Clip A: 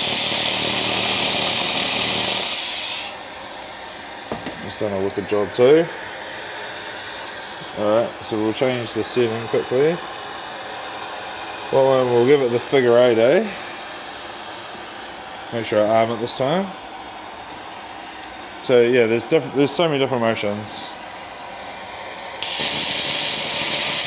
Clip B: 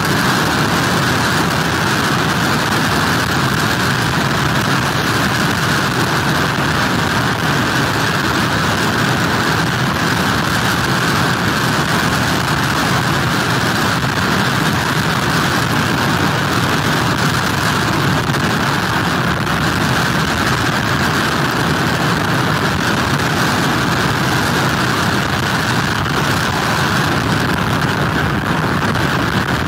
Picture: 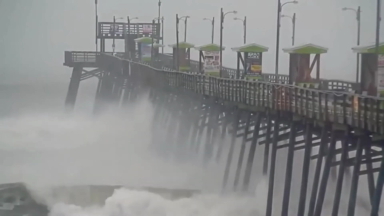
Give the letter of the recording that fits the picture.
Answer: B